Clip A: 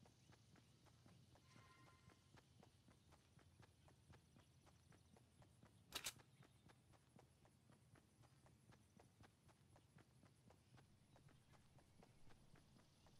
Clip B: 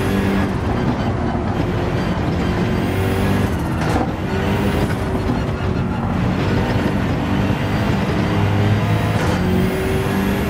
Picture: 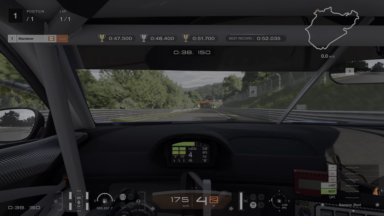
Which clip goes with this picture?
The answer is B